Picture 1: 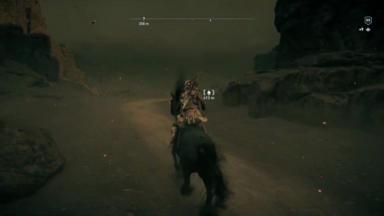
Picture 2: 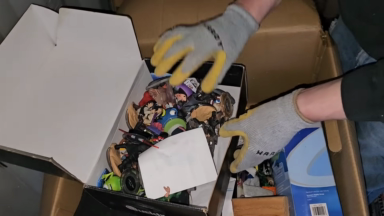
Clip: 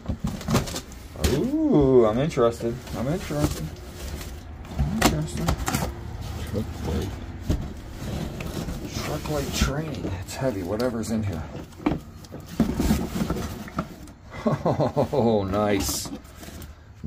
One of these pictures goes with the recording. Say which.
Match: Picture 2